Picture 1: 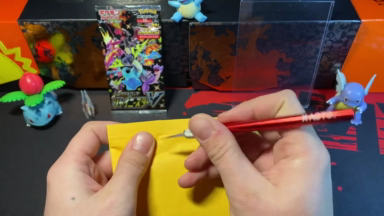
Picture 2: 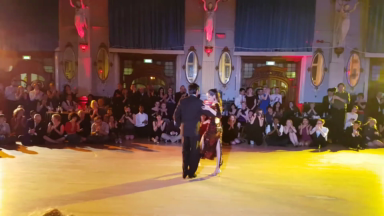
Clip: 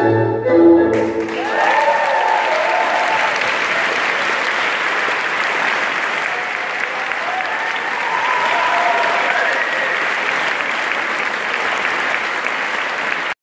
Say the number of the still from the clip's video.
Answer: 2